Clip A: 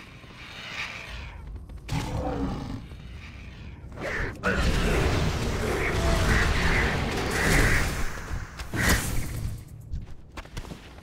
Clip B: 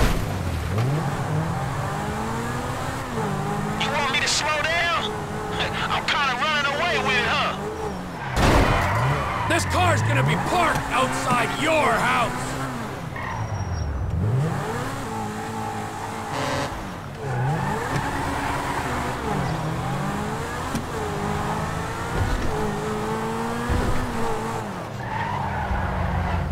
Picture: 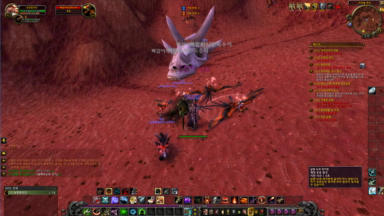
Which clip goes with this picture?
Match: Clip A